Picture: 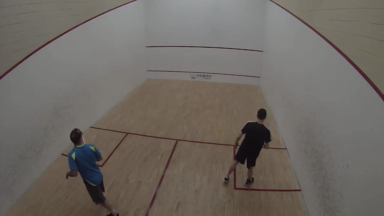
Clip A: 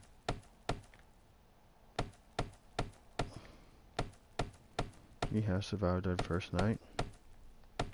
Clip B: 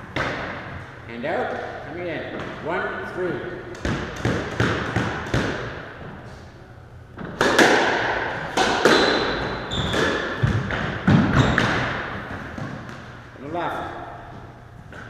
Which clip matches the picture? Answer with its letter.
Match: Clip B